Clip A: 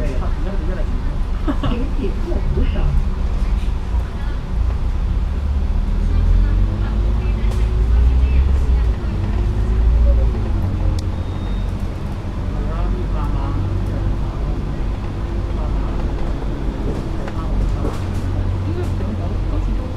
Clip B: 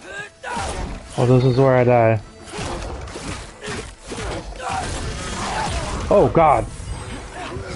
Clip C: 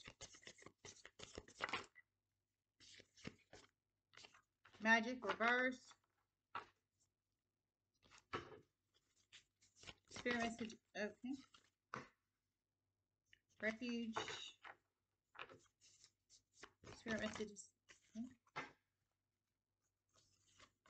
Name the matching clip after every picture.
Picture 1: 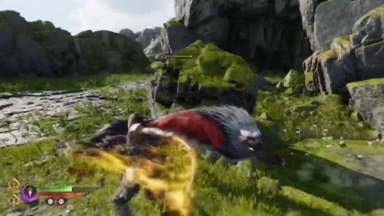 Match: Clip B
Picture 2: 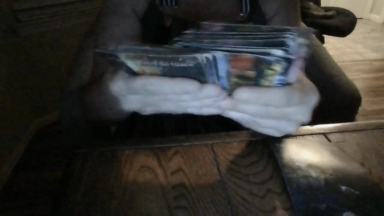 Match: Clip C